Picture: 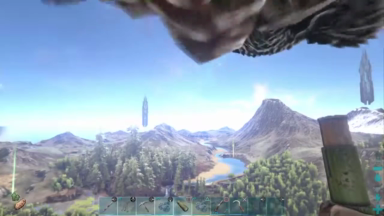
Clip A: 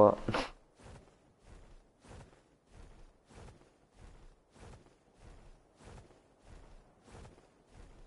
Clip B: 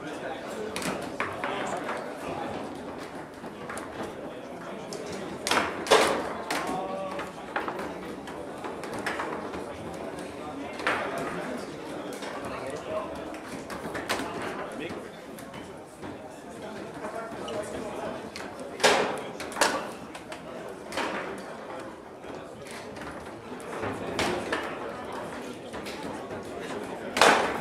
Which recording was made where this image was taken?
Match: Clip A